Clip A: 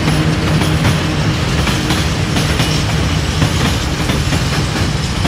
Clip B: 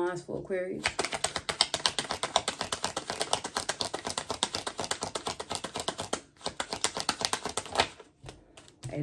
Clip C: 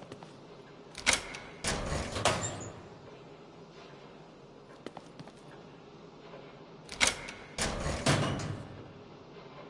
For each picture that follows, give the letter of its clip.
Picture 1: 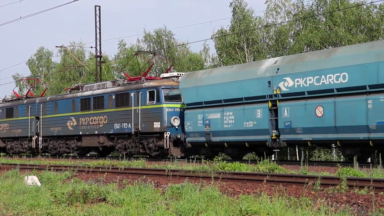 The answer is A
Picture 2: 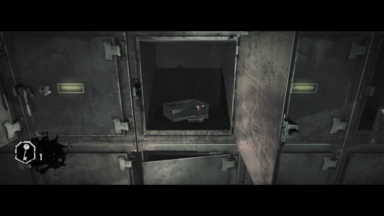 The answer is C